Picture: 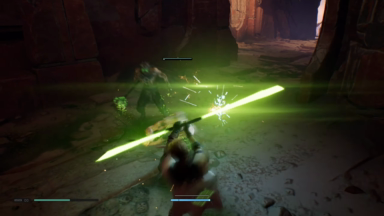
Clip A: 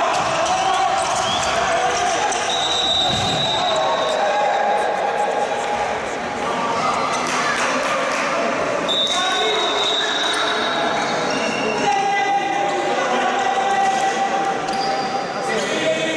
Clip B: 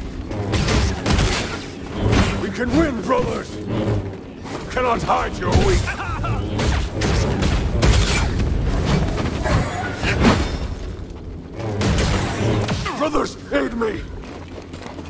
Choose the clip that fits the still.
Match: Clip B